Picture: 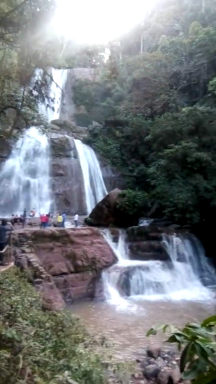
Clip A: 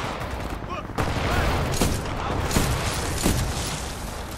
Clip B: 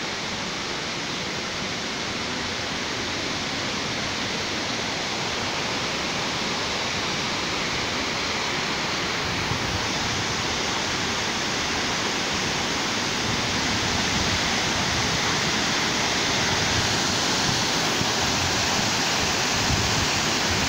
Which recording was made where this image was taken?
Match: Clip B